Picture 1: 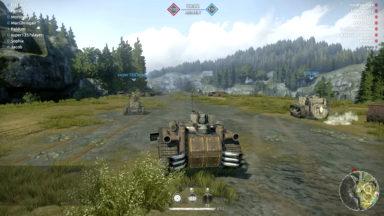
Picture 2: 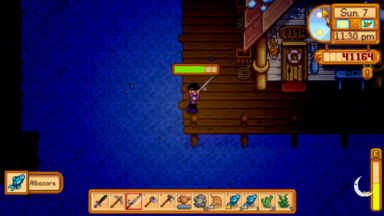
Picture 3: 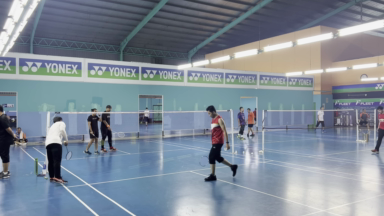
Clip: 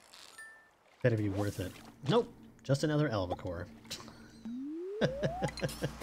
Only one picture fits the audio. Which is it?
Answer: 2